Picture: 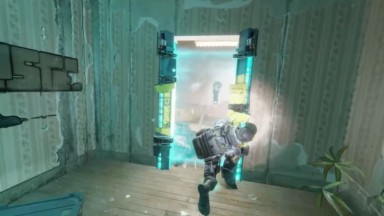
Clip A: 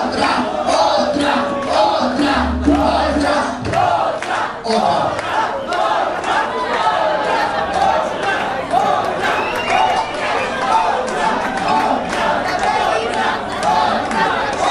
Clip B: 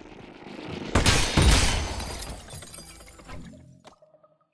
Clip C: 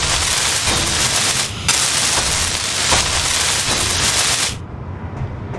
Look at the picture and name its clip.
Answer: B